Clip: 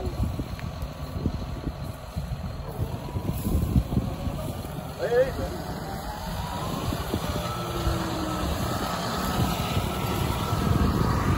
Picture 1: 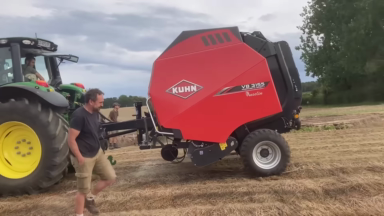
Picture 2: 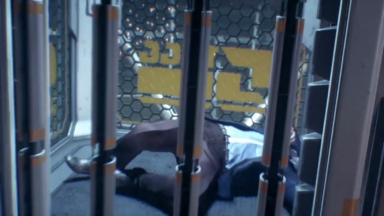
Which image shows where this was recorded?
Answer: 1